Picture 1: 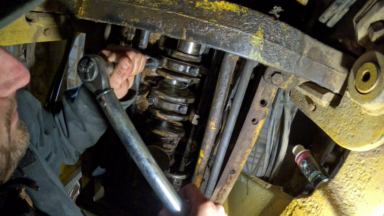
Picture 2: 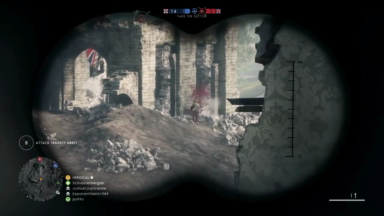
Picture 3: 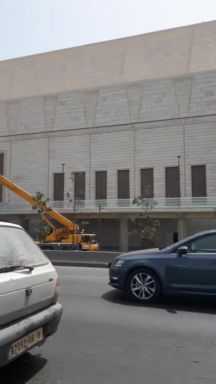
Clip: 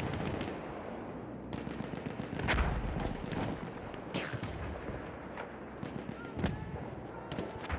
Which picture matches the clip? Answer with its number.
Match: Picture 2